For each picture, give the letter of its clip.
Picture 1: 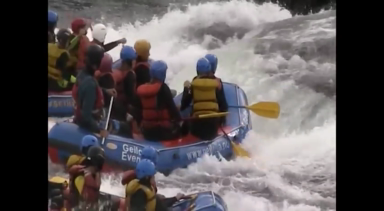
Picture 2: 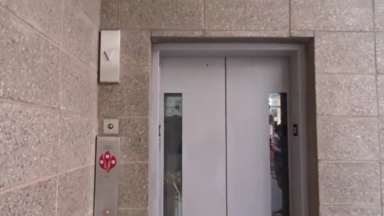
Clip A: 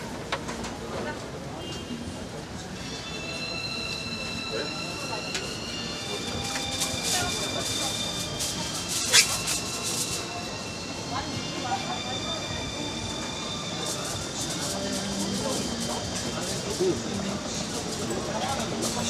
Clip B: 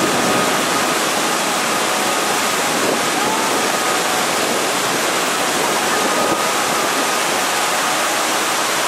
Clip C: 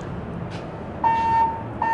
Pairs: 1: B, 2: C